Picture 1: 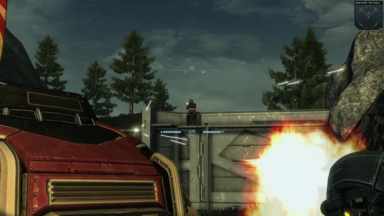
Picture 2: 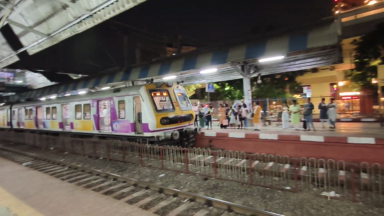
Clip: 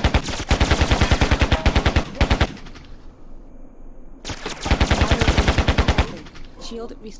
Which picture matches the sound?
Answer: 1